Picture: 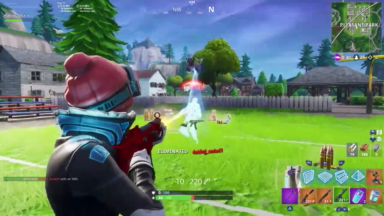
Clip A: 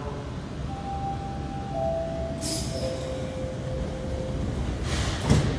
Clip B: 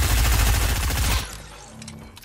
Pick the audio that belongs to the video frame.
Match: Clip B